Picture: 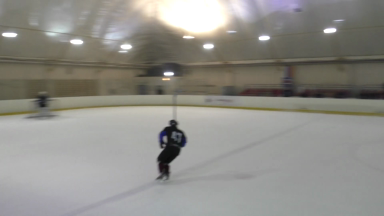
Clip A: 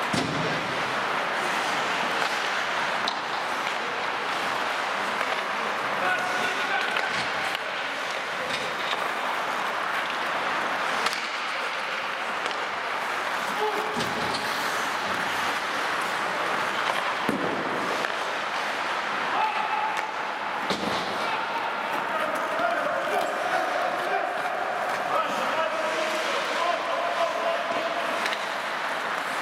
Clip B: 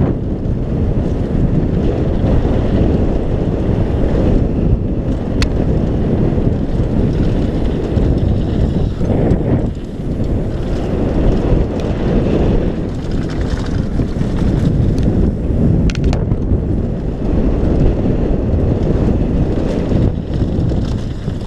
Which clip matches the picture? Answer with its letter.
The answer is A